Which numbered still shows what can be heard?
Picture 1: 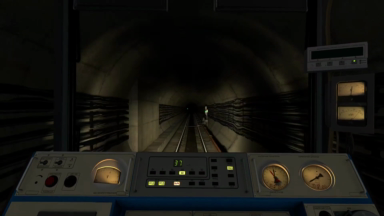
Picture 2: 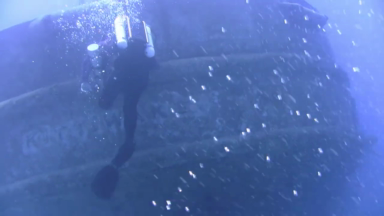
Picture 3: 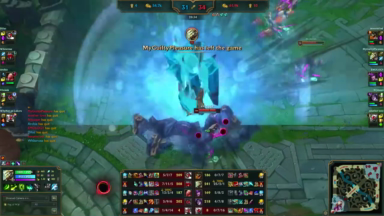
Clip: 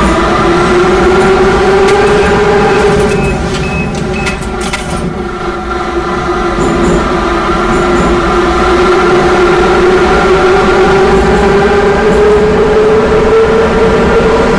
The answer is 1